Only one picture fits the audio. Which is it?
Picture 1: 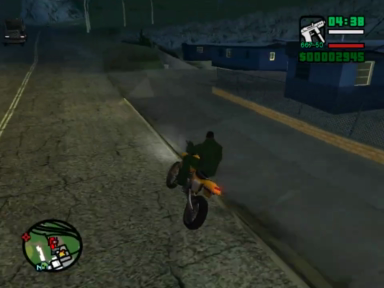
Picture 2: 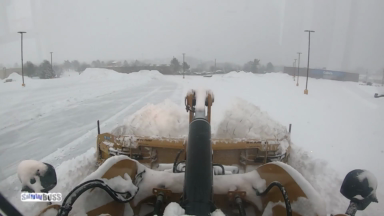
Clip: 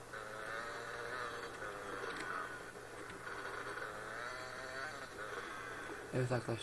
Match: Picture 1